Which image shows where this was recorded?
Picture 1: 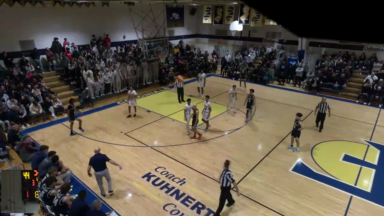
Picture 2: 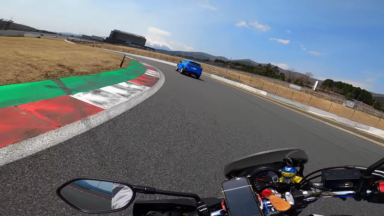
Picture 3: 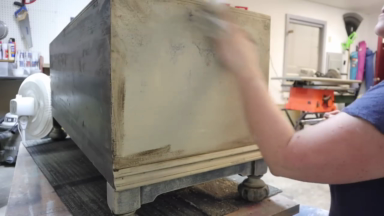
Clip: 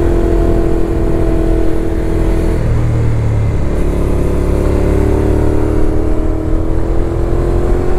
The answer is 2